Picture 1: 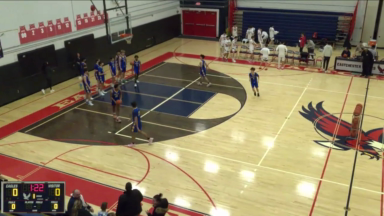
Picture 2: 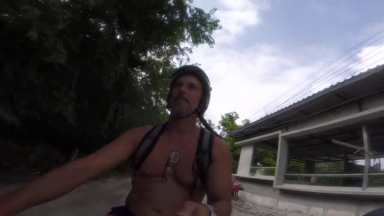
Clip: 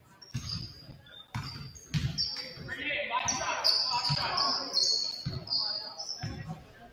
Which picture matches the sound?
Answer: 1